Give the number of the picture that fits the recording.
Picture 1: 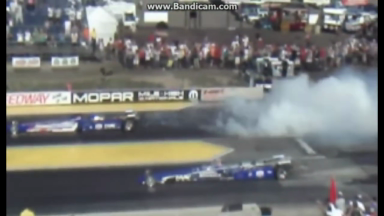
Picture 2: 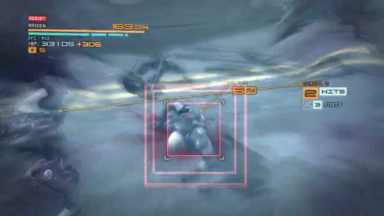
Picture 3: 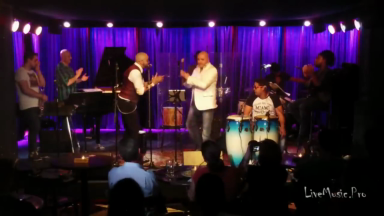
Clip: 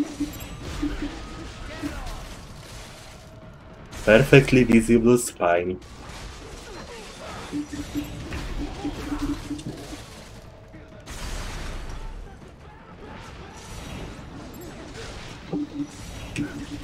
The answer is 2